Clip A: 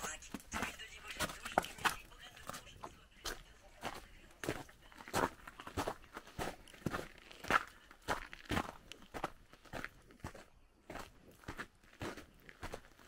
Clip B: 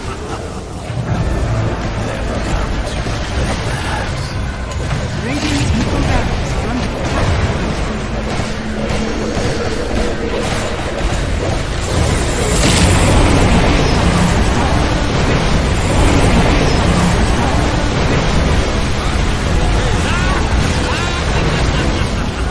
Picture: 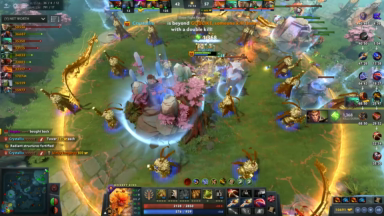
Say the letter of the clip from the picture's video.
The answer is B